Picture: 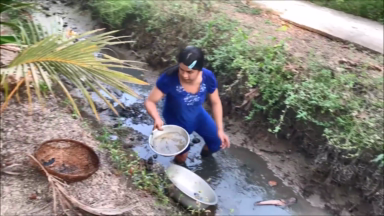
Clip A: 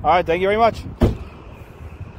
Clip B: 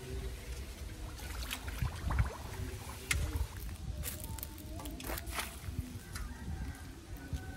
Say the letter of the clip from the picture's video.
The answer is B